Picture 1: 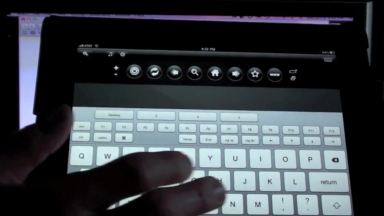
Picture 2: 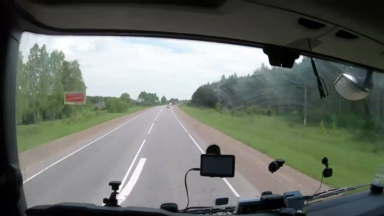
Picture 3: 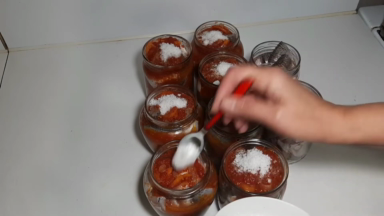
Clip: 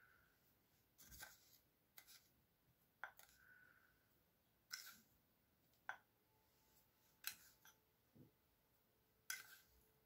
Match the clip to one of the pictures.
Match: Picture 3